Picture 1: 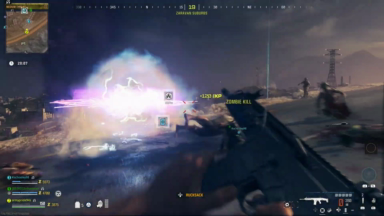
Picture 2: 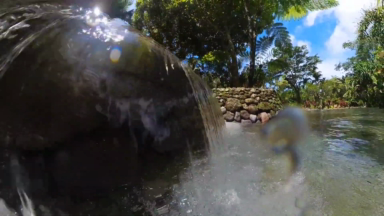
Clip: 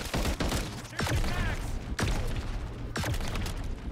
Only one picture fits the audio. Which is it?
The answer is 1